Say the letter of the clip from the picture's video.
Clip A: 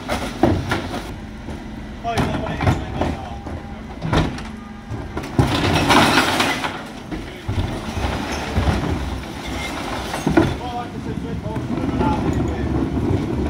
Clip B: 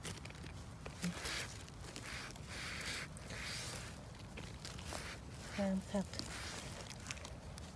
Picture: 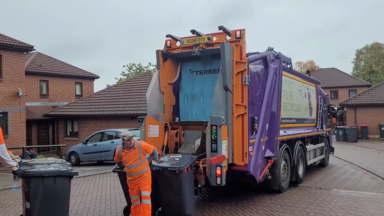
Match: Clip A